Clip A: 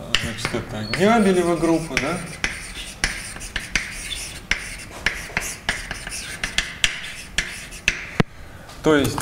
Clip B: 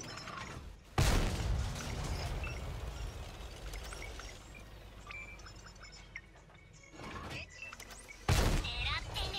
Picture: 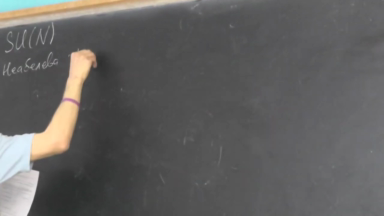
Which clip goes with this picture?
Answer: A